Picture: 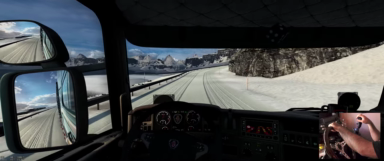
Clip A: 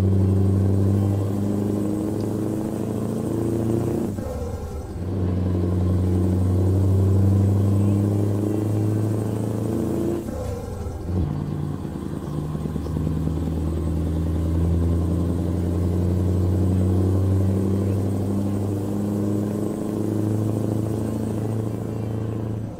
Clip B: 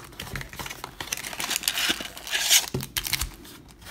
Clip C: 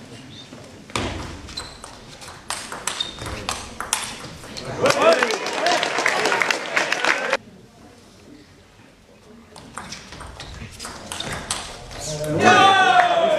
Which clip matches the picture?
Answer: A